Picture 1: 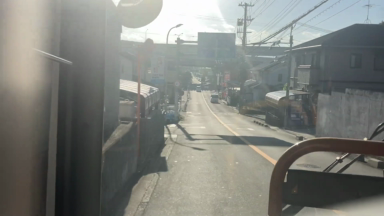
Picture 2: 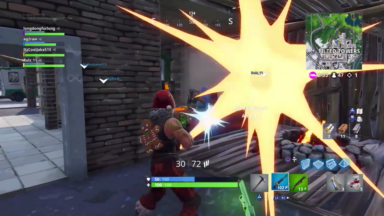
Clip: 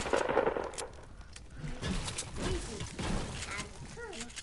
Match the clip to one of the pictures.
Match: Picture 2